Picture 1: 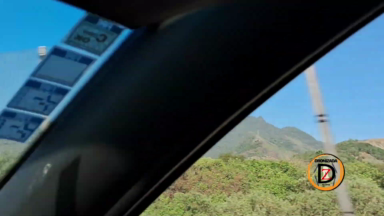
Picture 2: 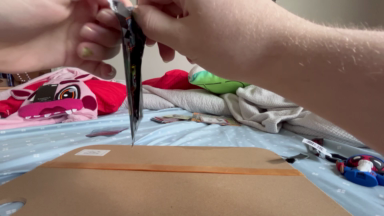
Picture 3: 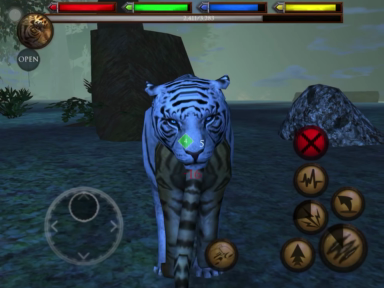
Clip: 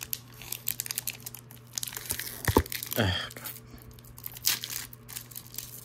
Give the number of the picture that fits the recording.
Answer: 2